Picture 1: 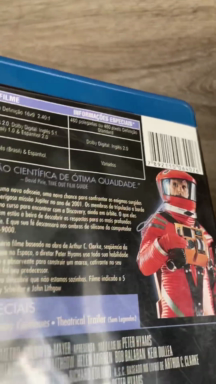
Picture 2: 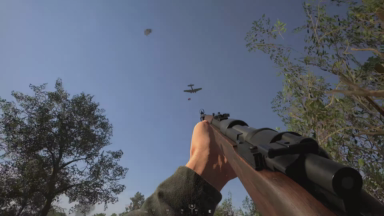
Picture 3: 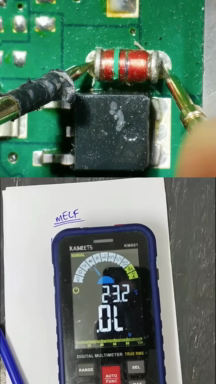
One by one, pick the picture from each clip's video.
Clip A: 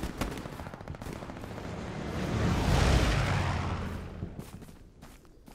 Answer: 2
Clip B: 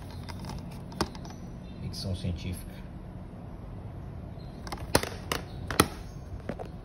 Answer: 1